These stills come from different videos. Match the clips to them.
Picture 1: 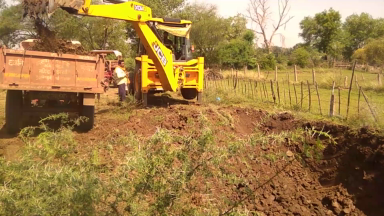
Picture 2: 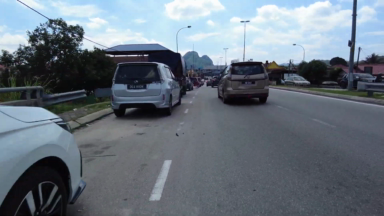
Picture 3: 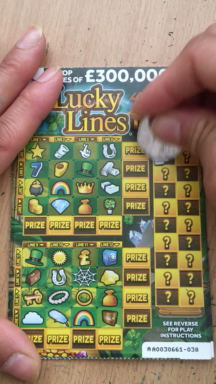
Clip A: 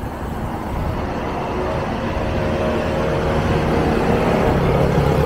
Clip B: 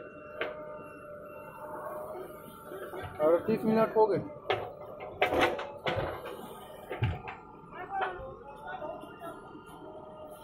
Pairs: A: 2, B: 1